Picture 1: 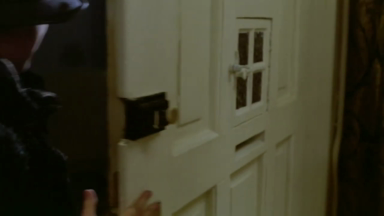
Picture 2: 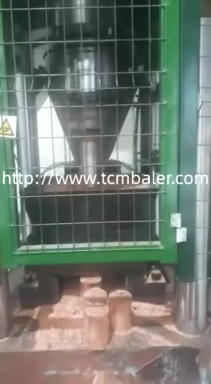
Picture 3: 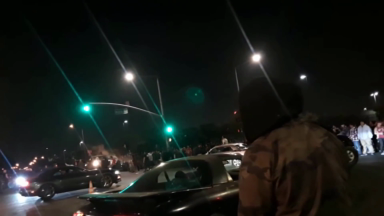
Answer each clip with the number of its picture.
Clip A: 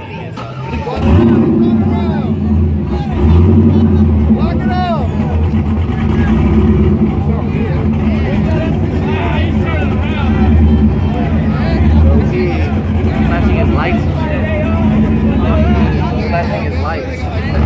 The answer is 3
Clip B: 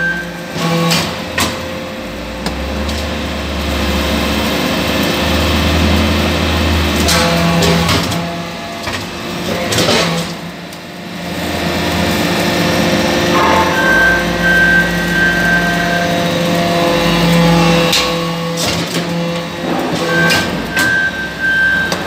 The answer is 2